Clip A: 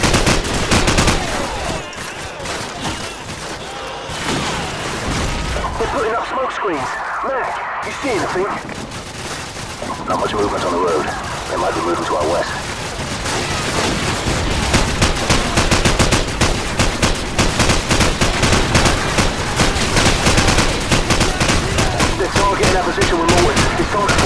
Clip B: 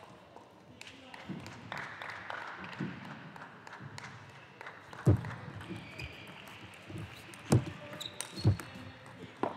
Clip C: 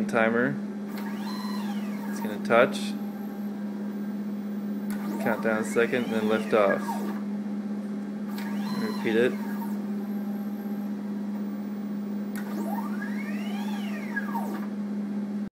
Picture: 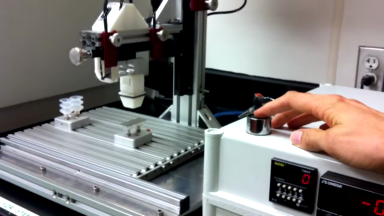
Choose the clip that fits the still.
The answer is C